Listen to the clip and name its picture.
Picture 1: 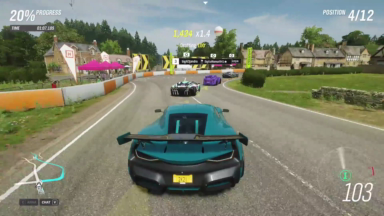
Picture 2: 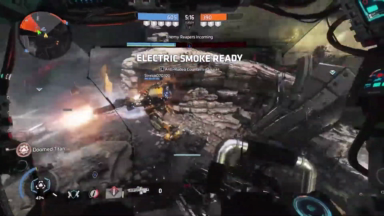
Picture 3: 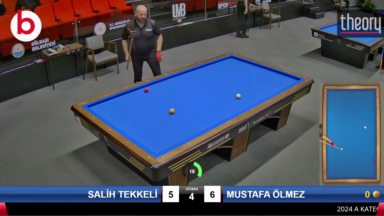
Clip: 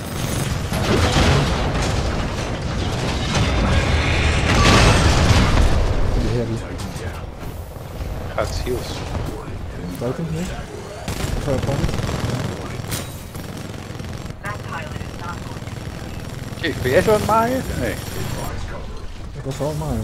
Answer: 2